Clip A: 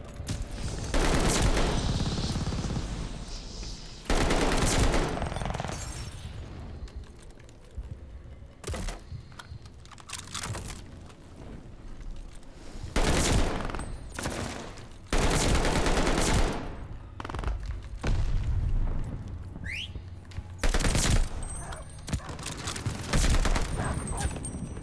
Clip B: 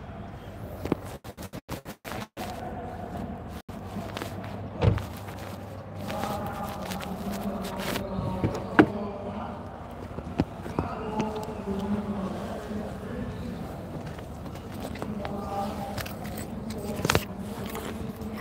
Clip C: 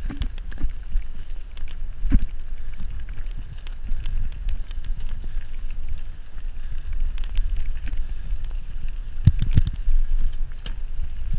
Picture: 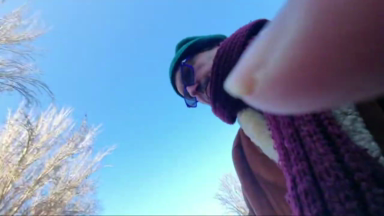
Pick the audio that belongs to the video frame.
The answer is B